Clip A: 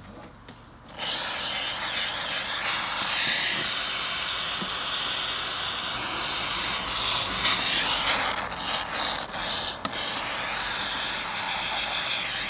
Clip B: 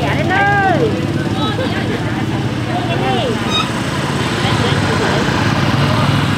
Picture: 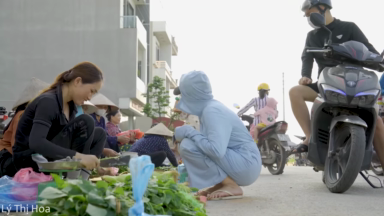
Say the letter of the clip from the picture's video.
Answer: B